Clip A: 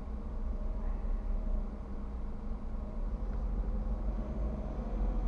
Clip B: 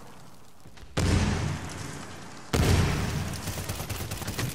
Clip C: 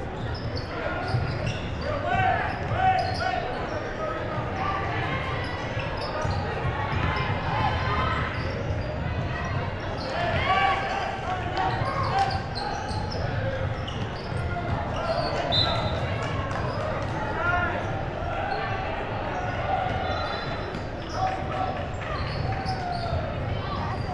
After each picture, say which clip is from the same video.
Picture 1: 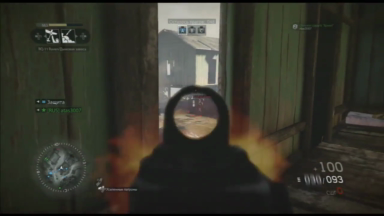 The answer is B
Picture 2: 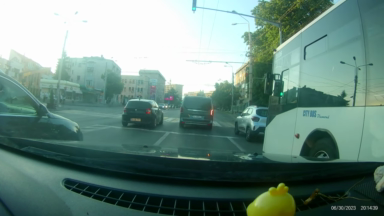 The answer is A